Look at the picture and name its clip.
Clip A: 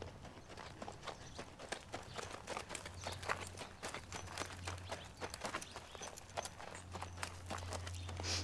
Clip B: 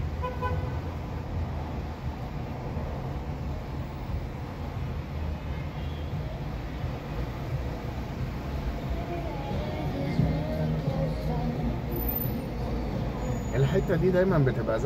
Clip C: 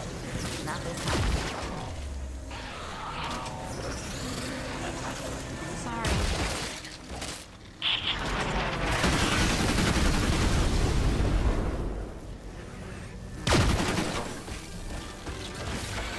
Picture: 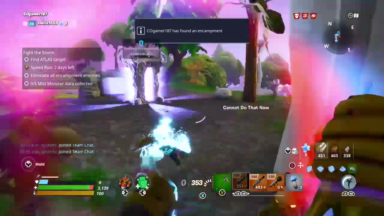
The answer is C